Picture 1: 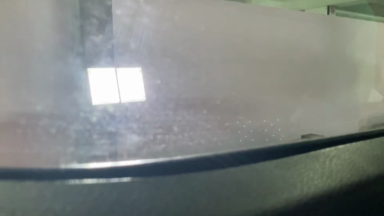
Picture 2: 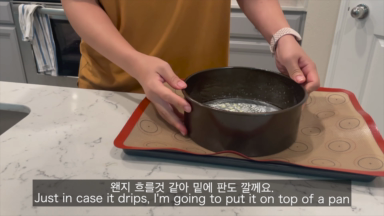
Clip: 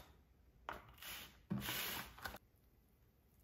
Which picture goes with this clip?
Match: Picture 2